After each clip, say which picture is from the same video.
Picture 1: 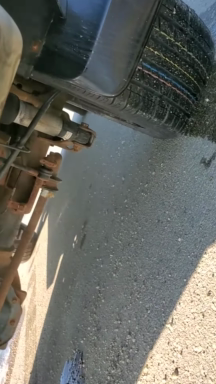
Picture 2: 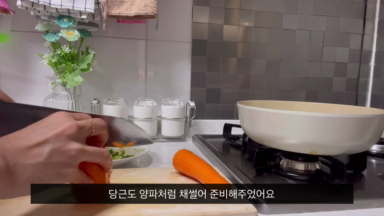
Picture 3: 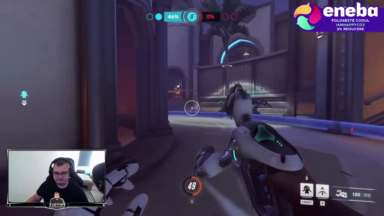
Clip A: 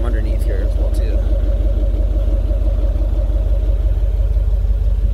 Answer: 1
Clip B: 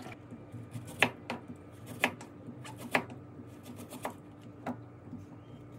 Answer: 2